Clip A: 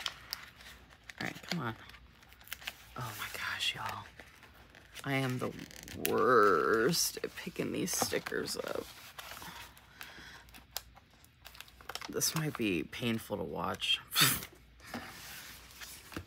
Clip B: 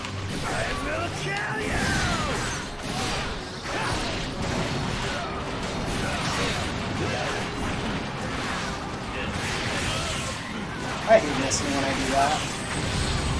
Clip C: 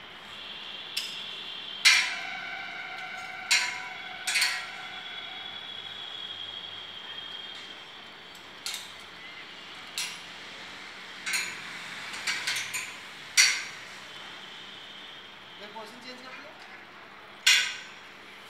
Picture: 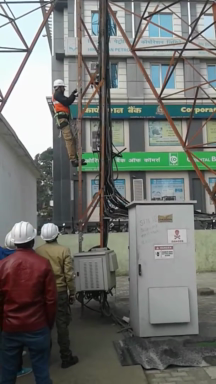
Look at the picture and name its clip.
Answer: C